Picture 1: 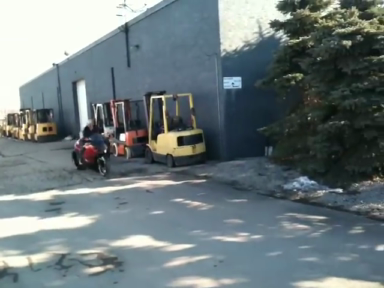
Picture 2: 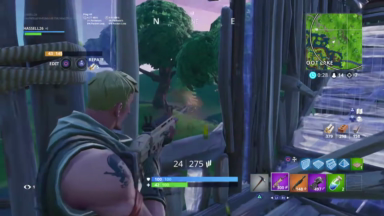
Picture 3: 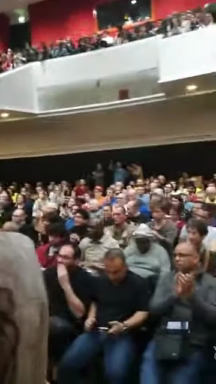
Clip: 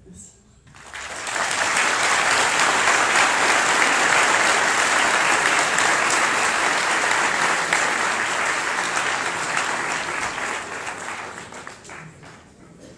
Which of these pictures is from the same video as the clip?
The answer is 3